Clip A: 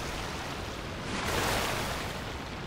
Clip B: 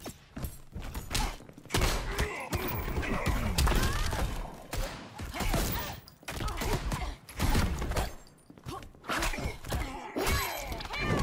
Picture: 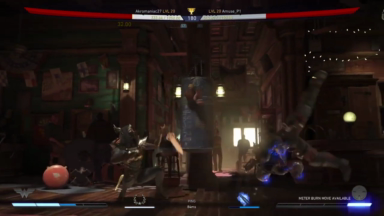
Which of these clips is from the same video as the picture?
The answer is B